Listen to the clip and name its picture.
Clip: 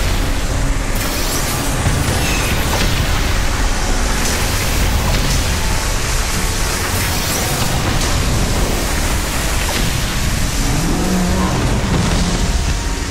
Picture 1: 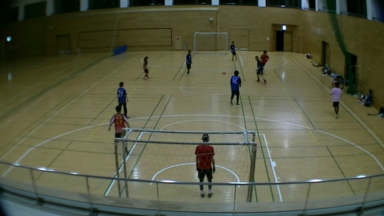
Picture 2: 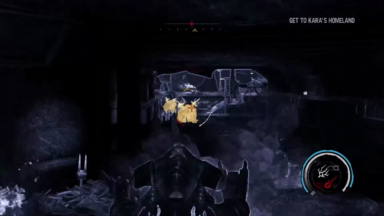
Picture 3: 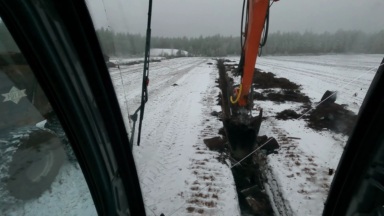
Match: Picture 2